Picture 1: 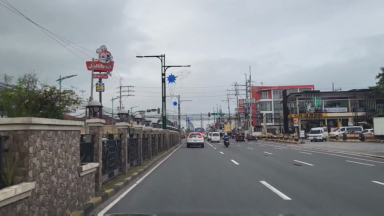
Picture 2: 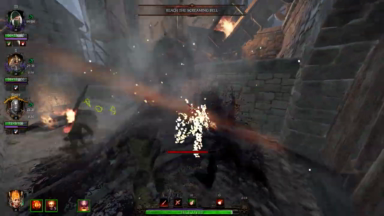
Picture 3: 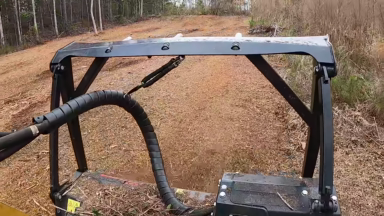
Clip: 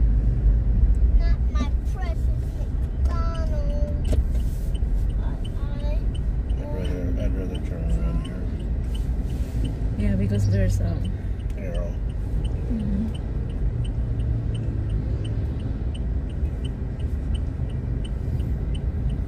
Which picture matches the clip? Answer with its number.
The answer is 1